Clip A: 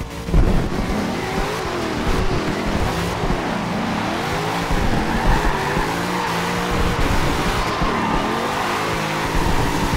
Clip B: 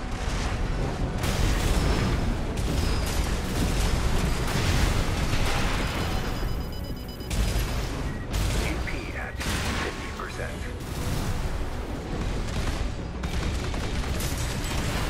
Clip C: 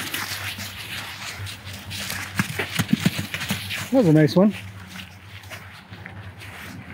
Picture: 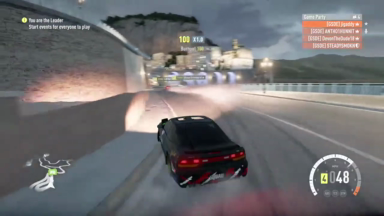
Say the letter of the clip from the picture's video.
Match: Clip A